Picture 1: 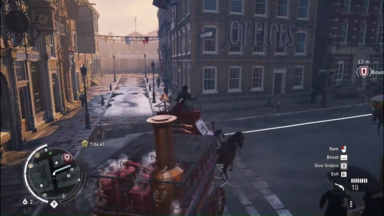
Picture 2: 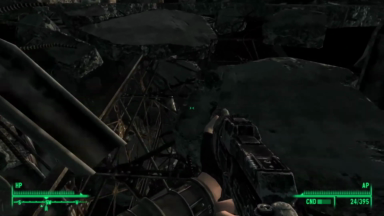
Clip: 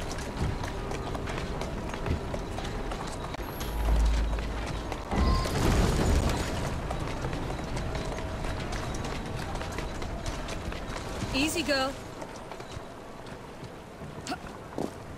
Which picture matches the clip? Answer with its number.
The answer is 1